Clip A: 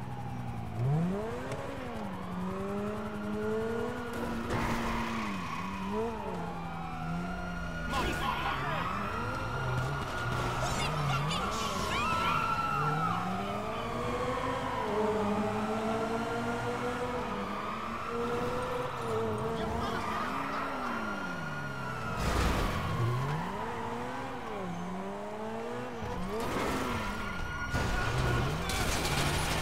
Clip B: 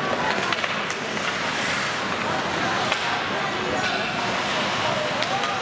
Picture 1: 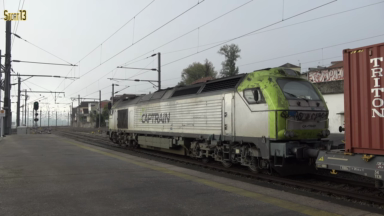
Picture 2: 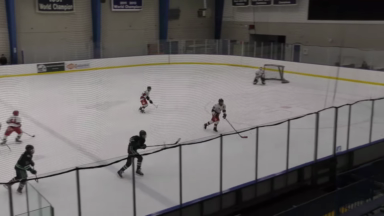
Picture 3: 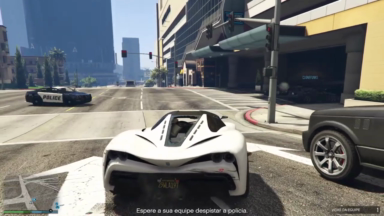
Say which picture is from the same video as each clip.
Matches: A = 3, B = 2